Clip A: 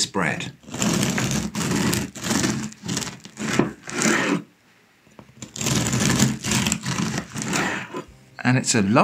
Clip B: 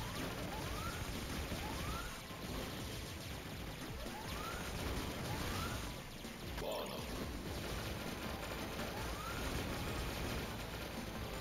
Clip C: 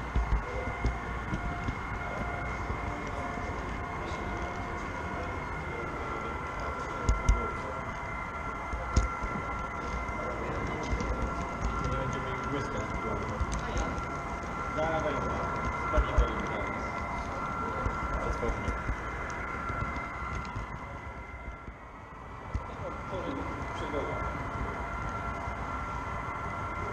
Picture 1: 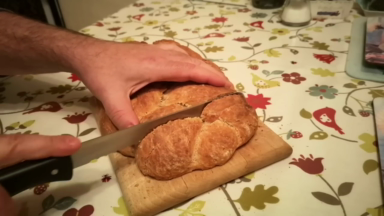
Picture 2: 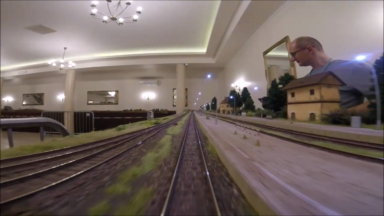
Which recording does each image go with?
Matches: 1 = A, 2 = C